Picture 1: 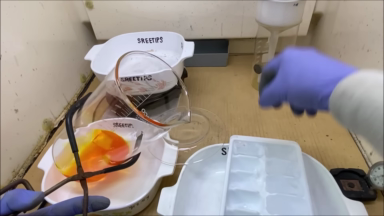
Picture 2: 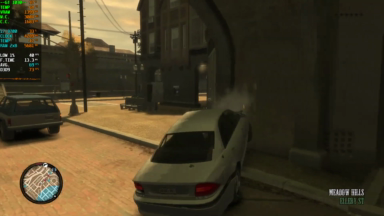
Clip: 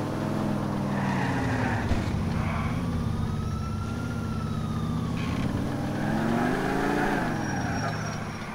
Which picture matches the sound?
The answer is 2